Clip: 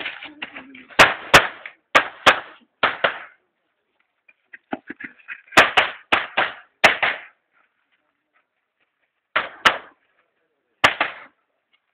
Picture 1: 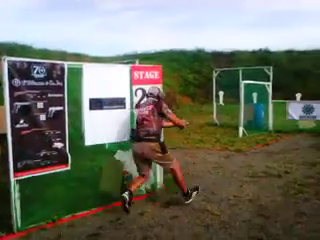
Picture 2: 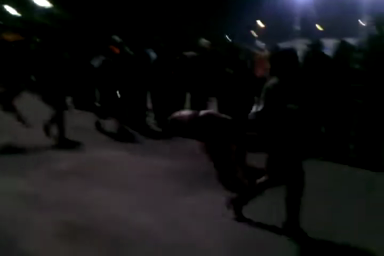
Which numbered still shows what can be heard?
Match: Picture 1